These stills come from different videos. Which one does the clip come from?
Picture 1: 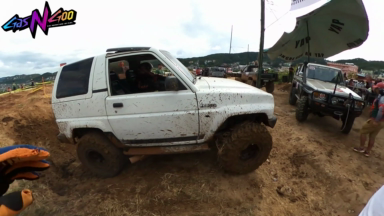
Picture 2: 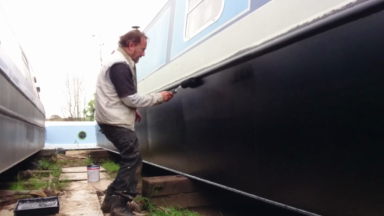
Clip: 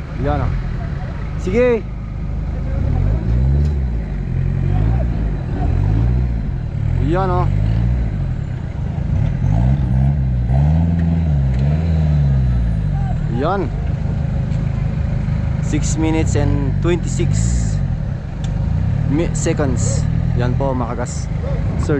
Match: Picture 1